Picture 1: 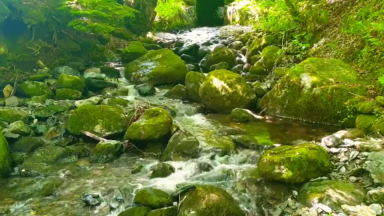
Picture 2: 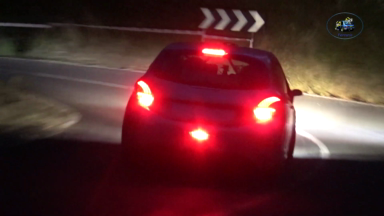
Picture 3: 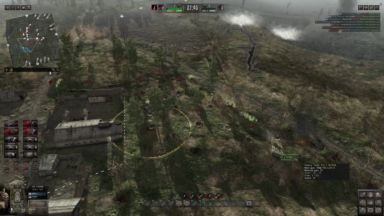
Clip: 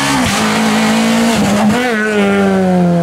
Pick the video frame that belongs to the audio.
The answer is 2